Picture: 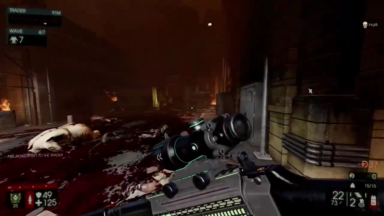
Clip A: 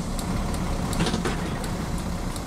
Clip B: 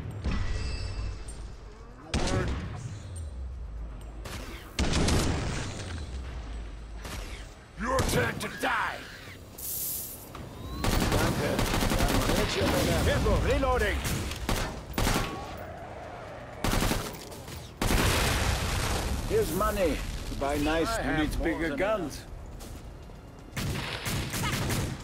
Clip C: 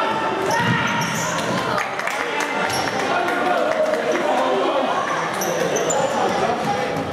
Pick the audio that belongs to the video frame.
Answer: B